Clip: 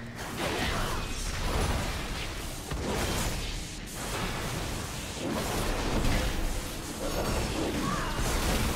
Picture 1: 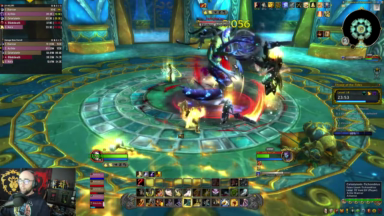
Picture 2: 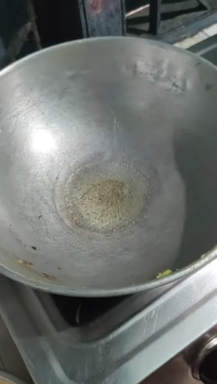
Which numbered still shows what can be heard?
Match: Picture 1